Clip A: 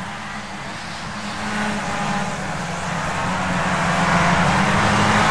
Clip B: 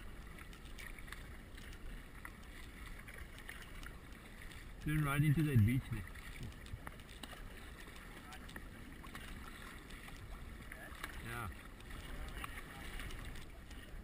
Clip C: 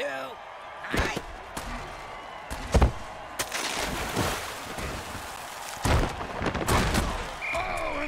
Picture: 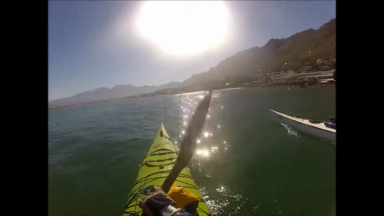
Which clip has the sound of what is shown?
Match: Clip B